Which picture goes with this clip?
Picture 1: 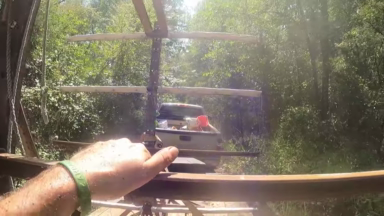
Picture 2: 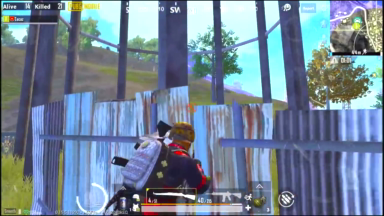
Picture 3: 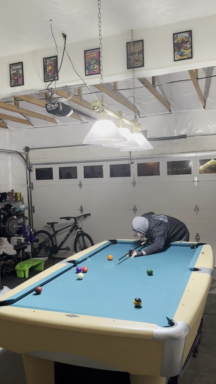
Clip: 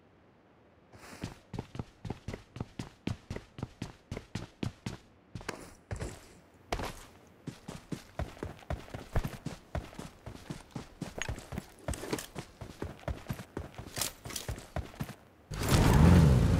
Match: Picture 2